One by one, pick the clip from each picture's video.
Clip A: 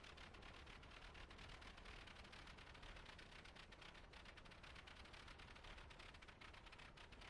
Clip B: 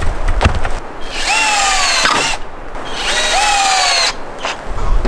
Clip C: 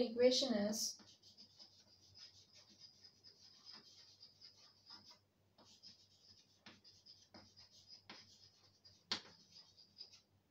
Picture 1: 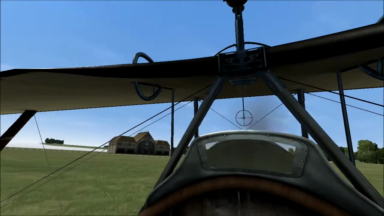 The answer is A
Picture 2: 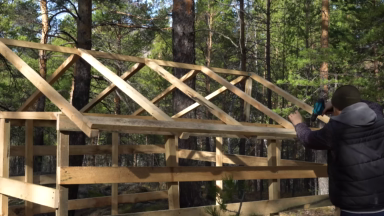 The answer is B